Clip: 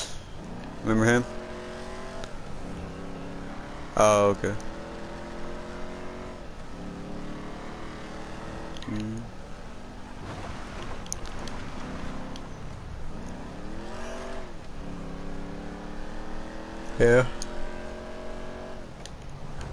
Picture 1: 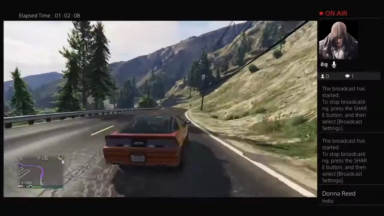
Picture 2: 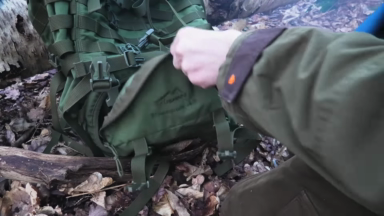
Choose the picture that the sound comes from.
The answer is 1